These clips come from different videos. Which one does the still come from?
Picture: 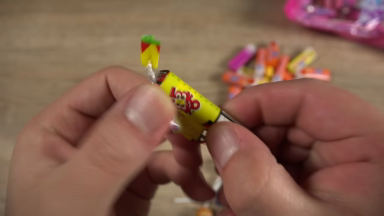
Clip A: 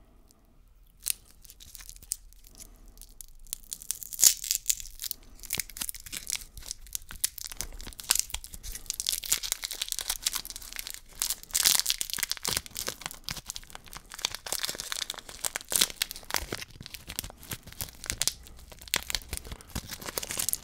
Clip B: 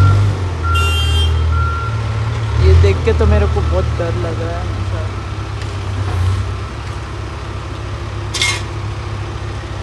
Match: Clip A